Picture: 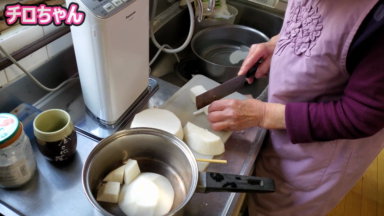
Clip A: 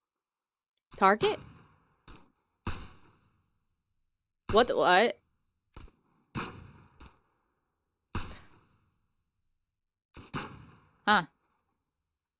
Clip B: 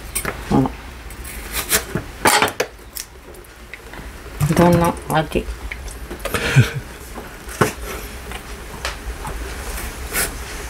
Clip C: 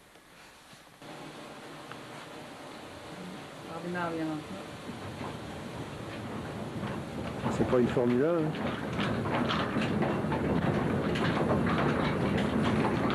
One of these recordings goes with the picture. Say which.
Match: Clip B